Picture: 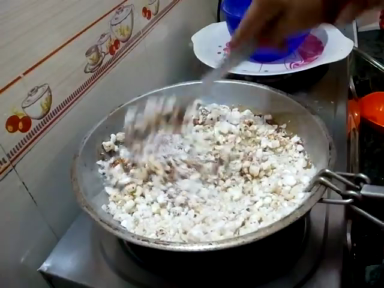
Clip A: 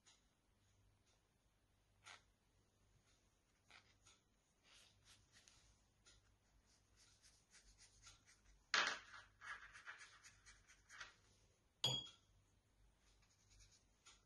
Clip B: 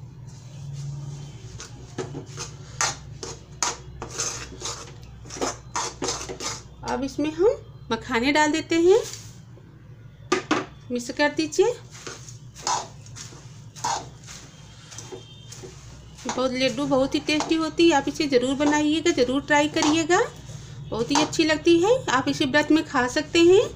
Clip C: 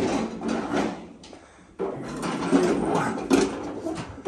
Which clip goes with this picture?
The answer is B